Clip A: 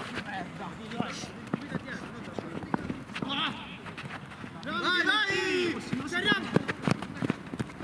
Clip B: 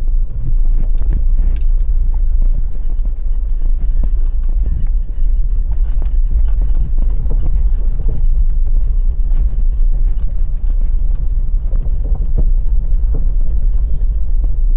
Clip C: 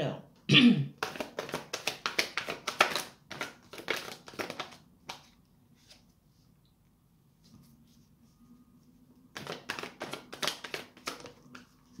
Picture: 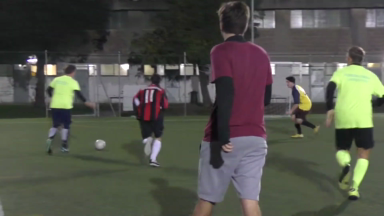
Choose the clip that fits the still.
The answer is A